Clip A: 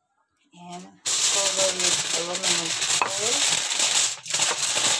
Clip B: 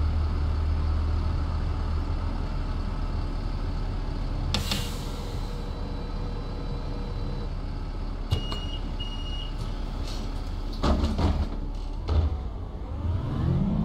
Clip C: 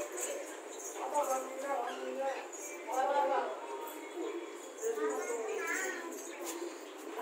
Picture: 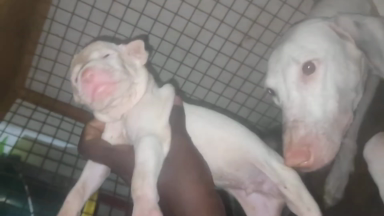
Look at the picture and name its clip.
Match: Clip C